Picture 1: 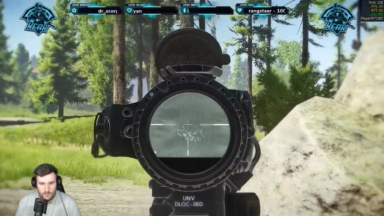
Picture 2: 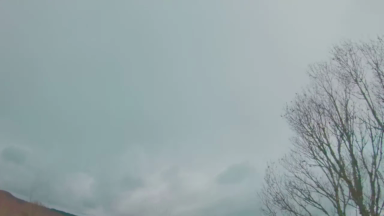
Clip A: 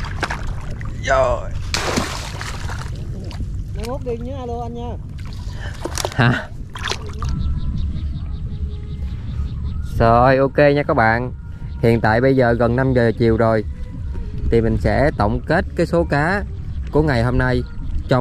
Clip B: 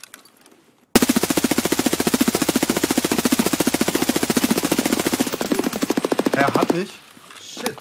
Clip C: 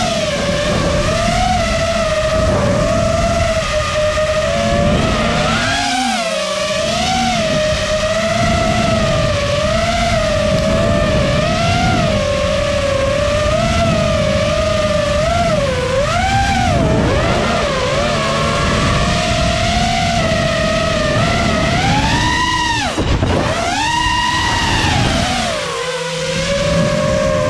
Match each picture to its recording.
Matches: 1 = B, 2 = C